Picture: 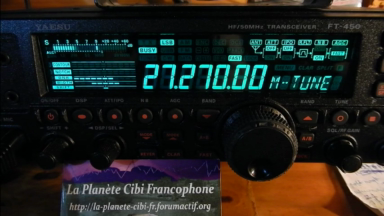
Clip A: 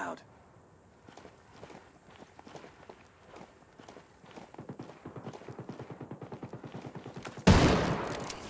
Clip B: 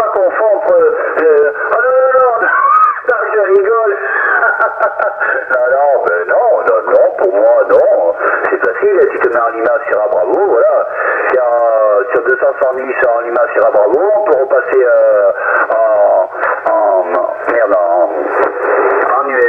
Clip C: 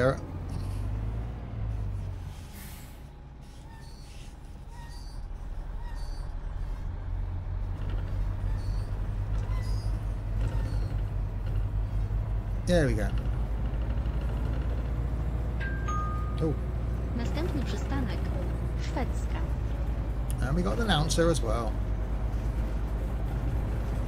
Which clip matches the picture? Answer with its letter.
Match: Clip B